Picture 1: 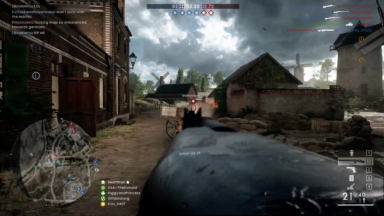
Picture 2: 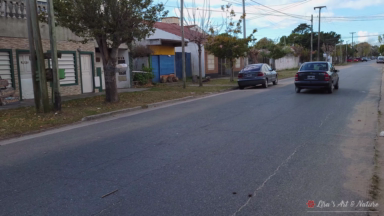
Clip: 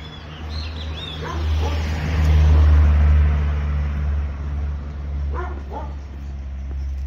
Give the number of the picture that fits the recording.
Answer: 2